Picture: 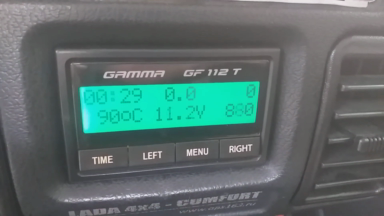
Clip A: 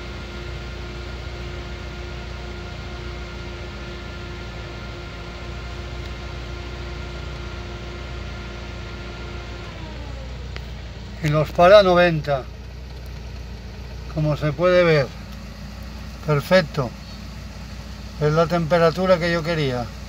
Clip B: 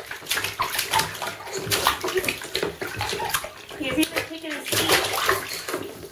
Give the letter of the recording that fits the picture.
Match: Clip A